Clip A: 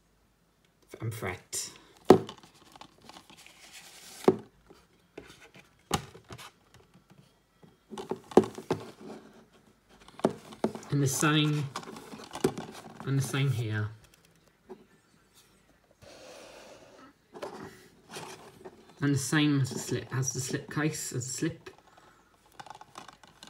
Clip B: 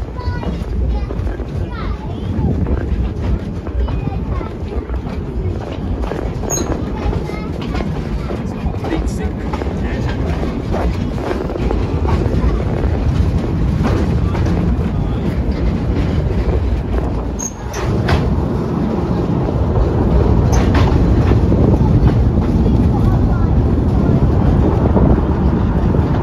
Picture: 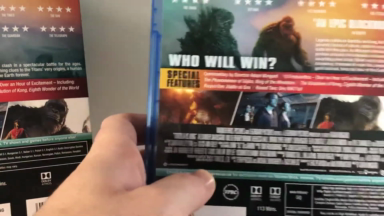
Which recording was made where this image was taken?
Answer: A